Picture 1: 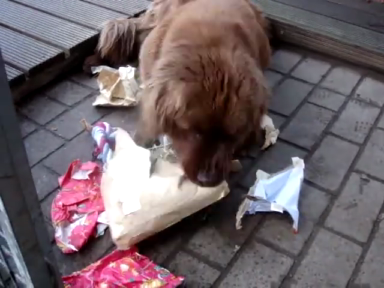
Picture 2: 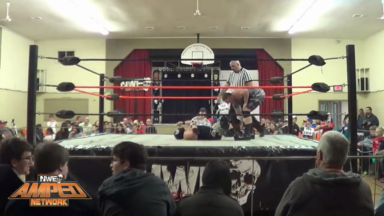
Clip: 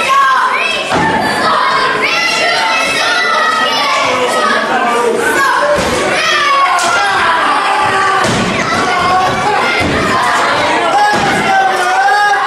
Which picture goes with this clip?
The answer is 2